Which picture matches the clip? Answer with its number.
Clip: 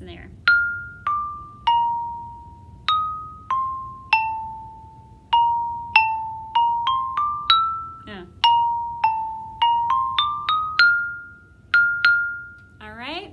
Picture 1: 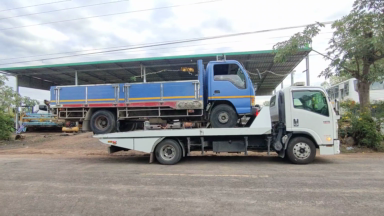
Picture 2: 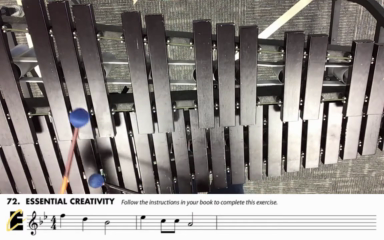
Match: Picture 2